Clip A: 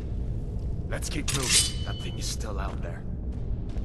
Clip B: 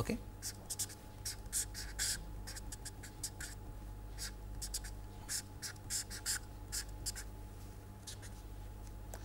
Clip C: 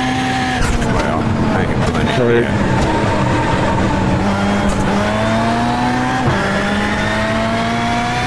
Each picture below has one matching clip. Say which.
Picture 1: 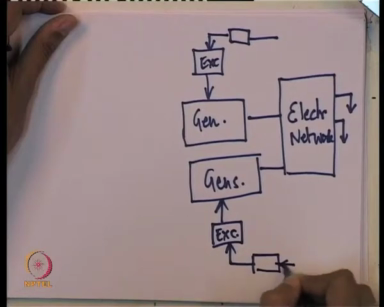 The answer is B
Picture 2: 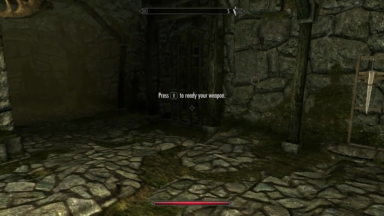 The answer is A